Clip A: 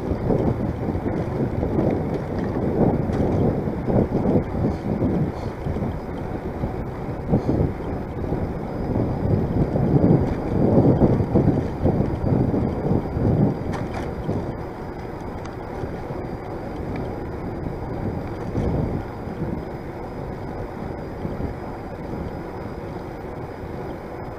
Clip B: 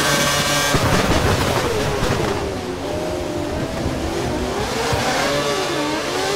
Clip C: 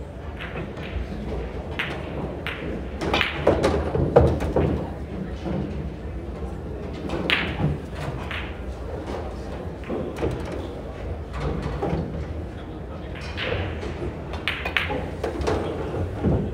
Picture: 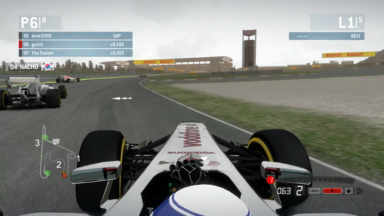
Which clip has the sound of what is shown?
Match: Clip B